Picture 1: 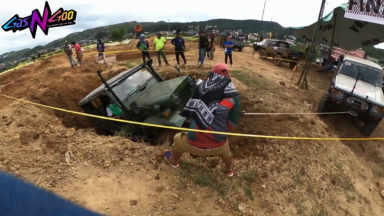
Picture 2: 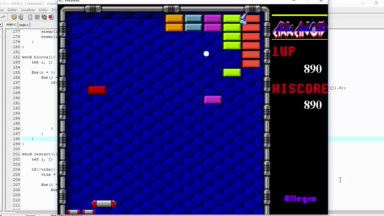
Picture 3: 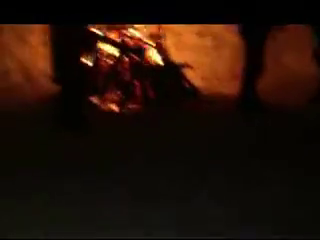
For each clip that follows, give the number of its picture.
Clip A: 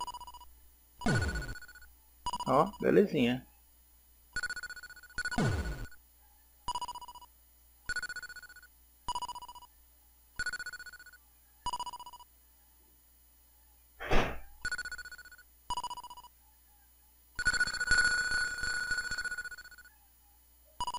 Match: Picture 2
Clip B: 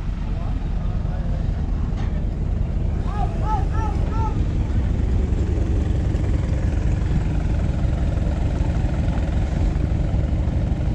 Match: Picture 1